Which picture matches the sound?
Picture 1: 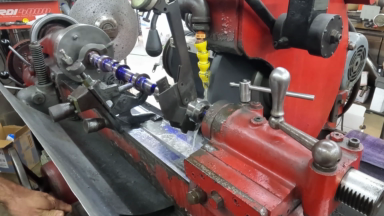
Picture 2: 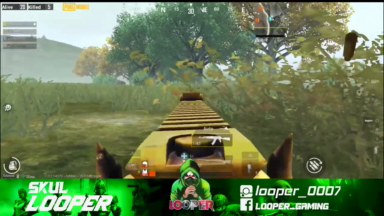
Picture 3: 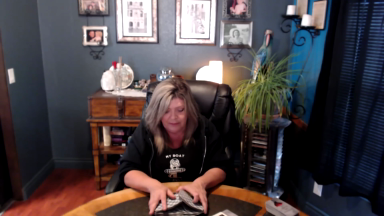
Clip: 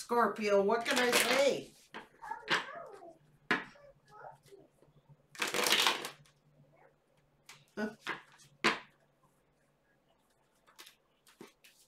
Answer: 3